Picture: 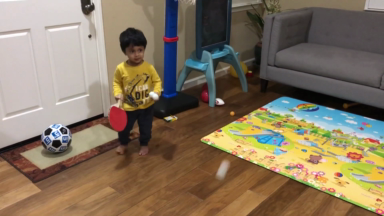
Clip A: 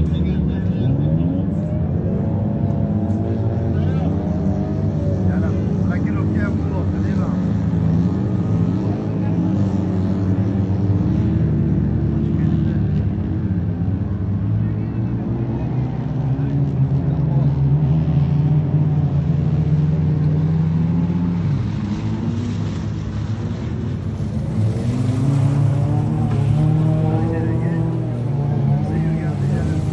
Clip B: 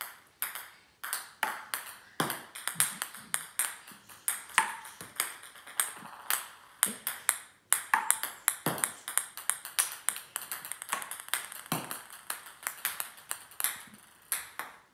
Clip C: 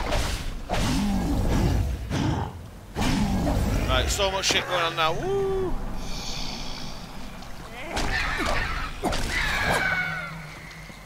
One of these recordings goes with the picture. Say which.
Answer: B